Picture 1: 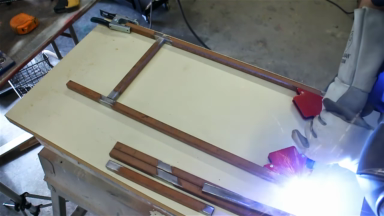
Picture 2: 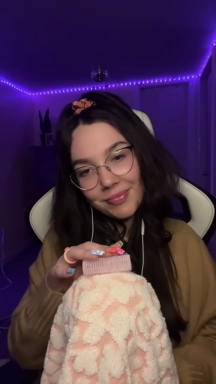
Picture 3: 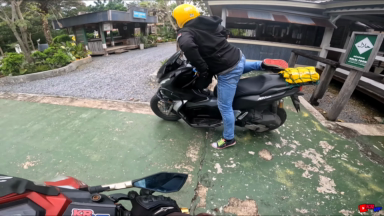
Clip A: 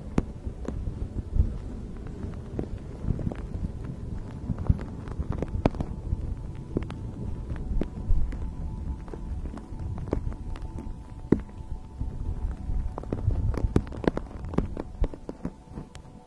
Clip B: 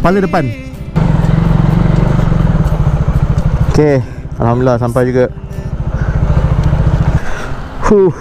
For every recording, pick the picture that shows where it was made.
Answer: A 2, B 3